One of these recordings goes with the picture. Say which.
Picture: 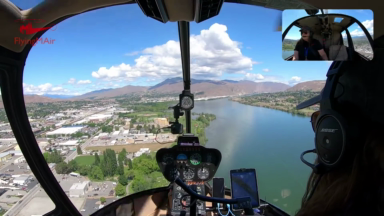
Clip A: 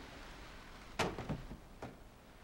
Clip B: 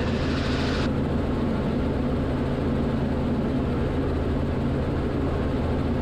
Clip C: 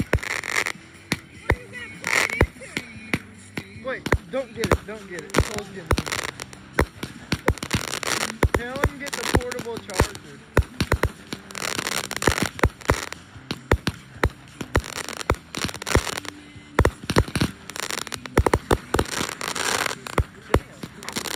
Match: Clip B